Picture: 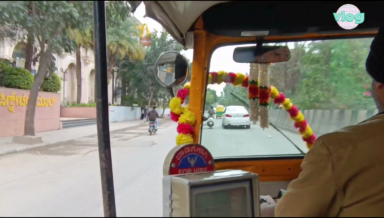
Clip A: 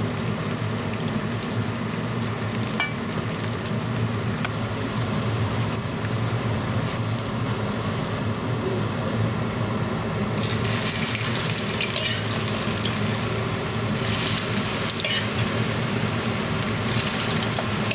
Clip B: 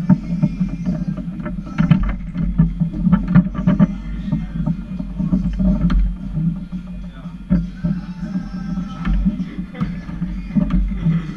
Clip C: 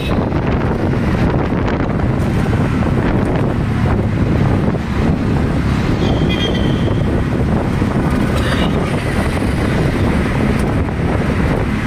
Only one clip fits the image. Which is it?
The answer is C